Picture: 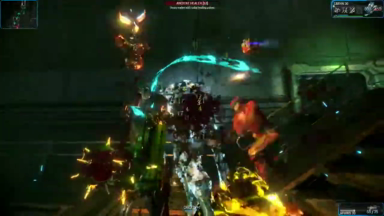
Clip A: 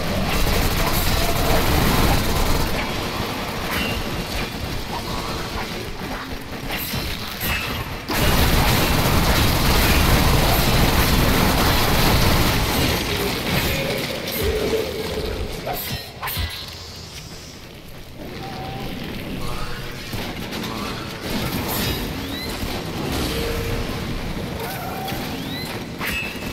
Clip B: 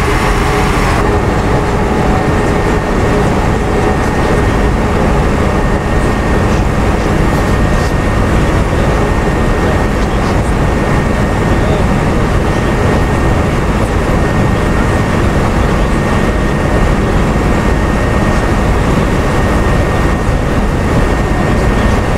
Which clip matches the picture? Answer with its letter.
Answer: A